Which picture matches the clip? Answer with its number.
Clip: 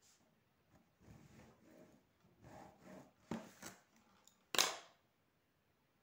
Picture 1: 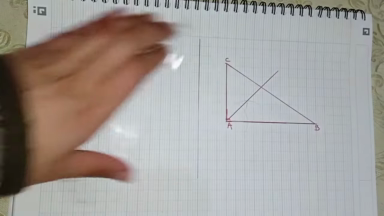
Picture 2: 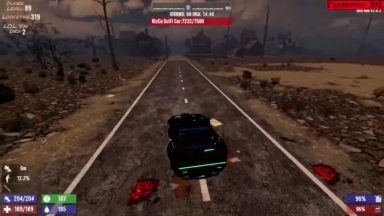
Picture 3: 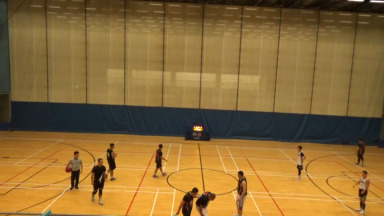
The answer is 1